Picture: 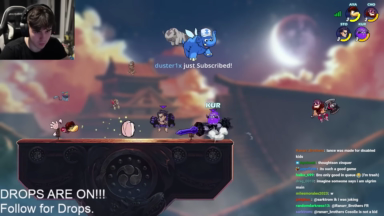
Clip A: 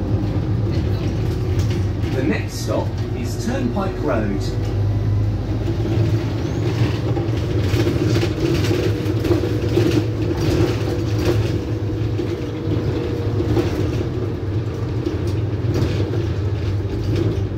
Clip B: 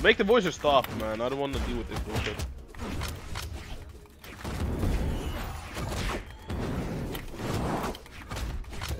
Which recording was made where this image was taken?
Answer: B